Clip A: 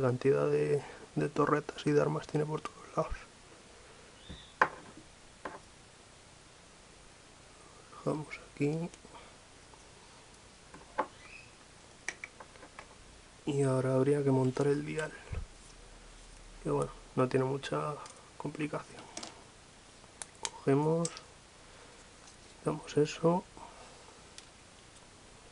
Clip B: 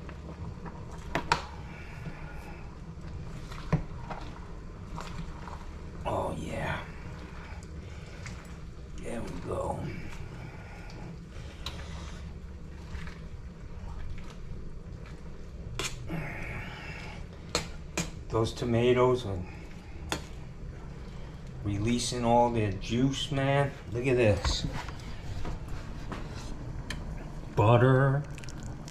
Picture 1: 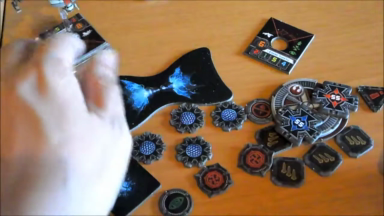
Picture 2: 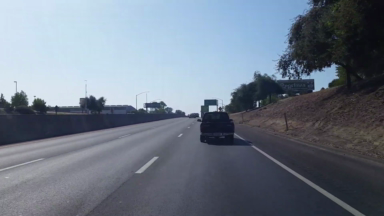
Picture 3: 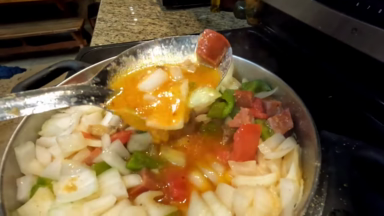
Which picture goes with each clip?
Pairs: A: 1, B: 3